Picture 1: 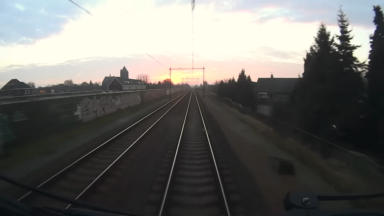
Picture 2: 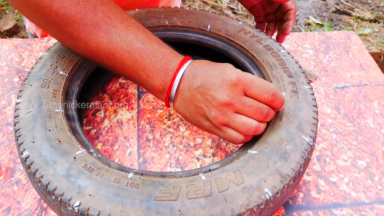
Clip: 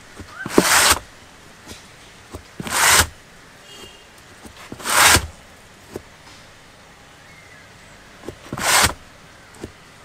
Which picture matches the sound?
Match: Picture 2